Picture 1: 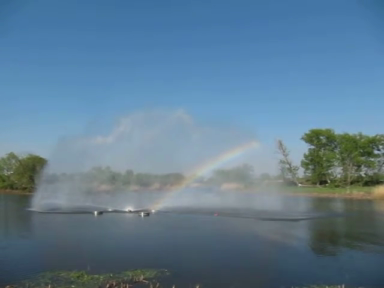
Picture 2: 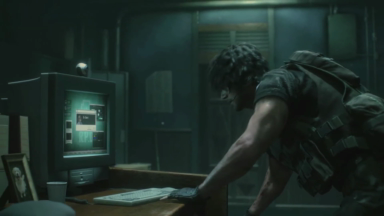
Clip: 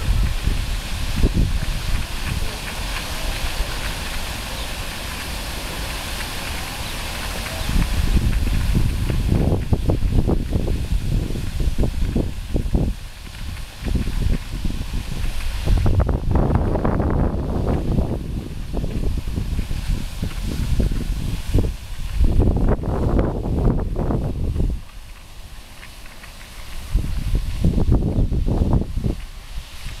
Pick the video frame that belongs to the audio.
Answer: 1